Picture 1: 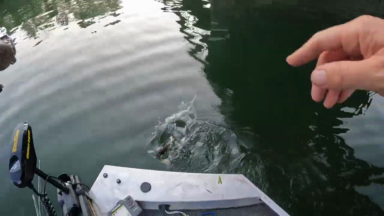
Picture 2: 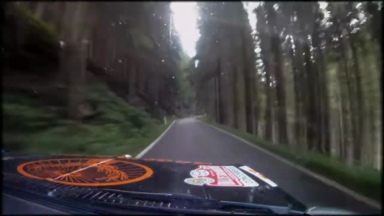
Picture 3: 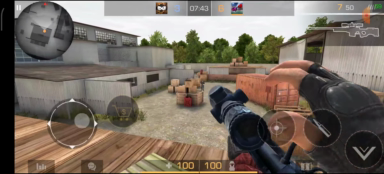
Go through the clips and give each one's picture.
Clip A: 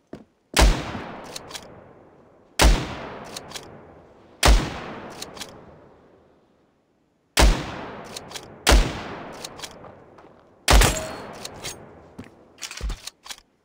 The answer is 3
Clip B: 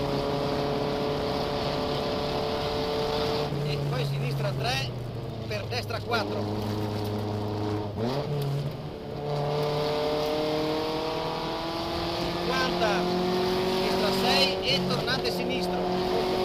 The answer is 2